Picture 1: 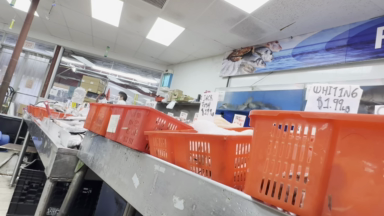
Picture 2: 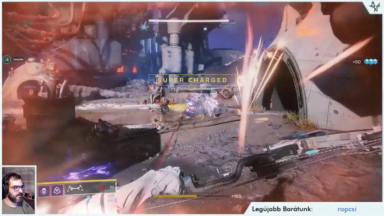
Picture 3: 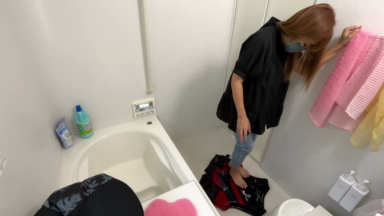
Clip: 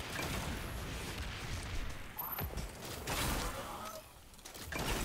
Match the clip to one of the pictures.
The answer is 2